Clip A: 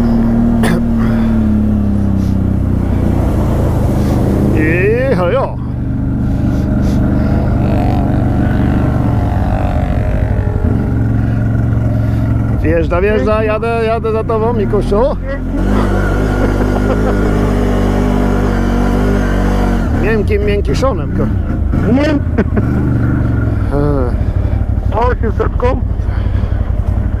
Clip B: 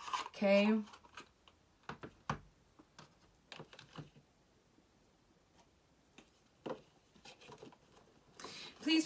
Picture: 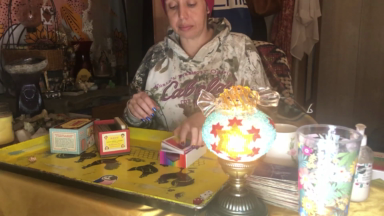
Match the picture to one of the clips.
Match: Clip B